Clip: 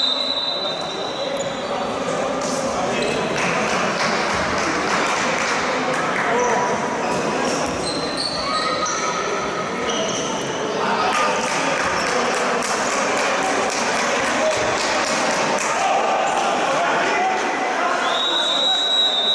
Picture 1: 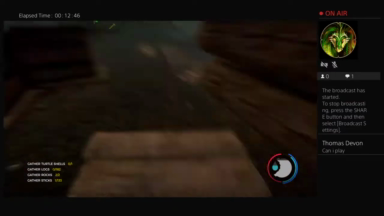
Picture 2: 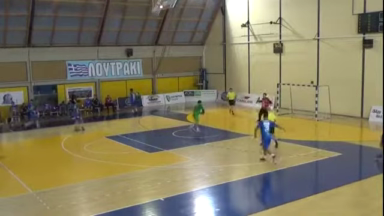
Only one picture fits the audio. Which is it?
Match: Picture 2